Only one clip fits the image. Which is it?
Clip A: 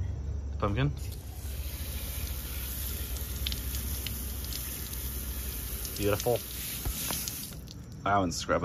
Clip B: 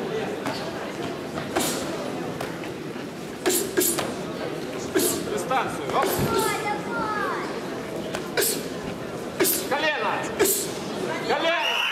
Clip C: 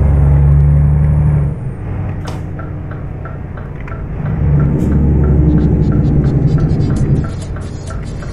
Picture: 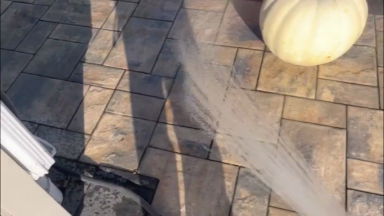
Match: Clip A